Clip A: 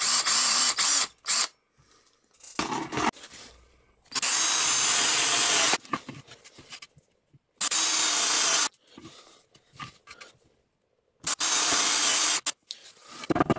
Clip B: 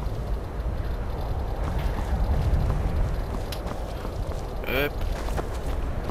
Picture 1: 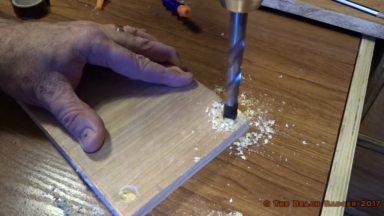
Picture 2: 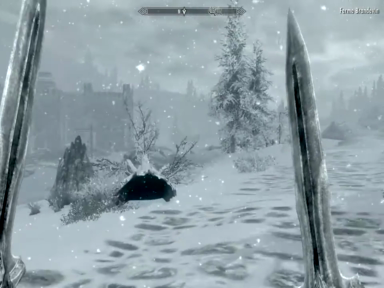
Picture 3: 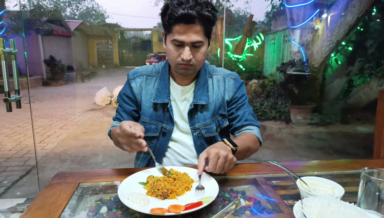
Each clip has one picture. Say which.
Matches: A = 1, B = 2